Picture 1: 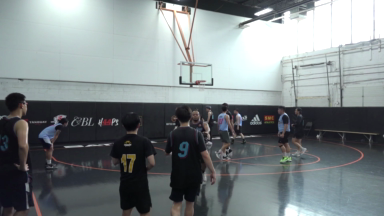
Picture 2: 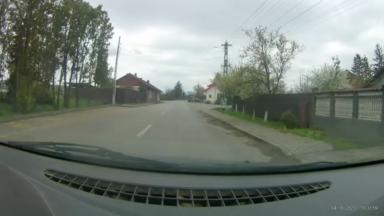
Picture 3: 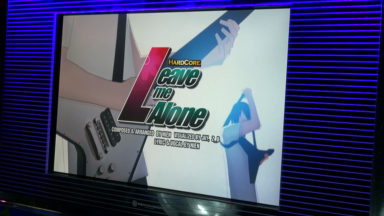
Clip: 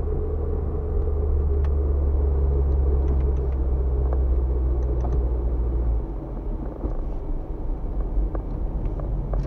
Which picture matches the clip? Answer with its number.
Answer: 2